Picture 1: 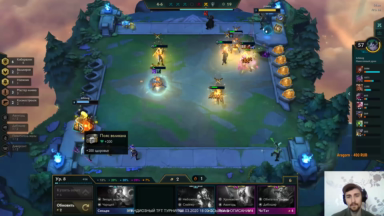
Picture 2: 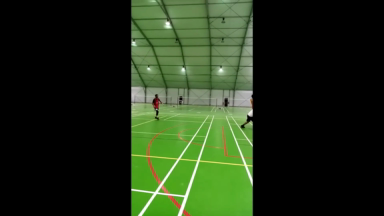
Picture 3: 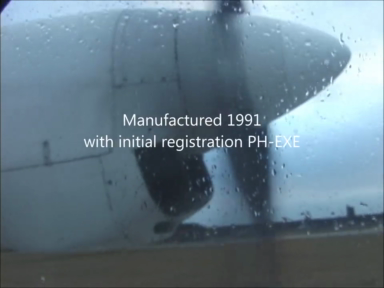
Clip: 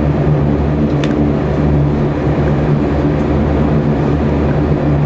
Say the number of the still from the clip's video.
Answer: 3